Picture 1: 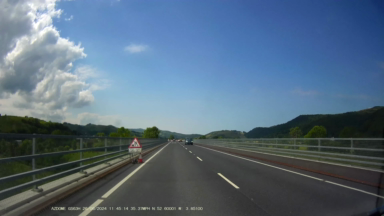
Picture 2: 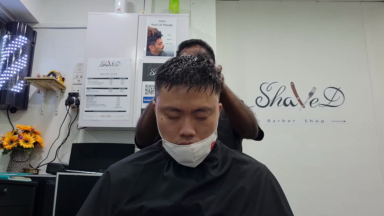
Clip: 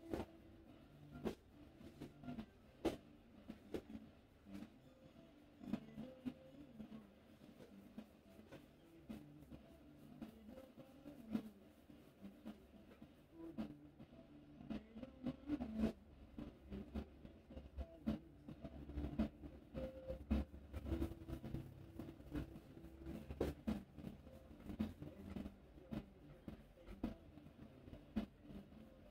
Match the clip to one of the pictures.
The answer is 2